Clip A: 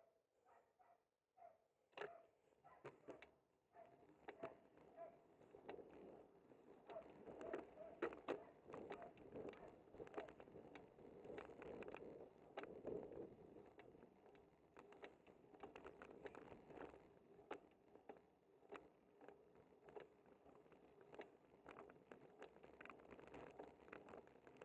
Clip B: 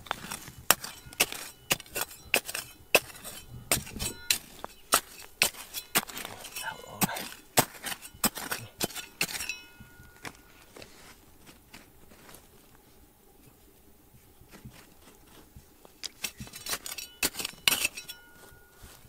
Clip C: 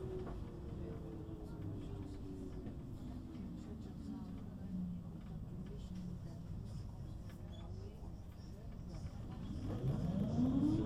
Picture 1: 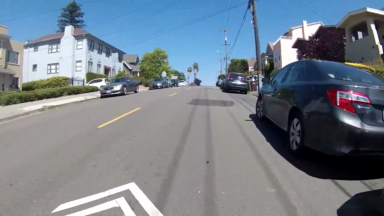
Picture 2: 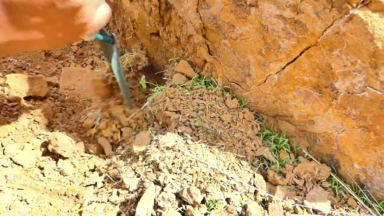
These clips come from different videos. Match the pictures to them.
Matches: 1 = A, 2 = B